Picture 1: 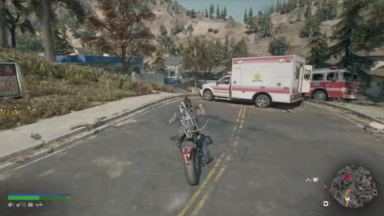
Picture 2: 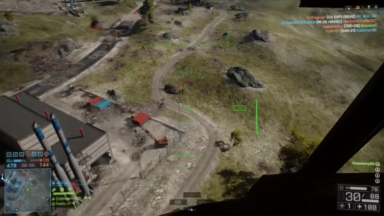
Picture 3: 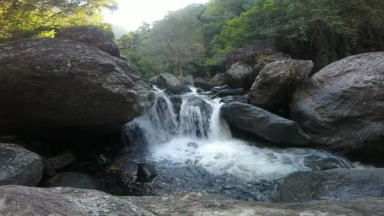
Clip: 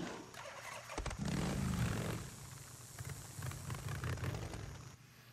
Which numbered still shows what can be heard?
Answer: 1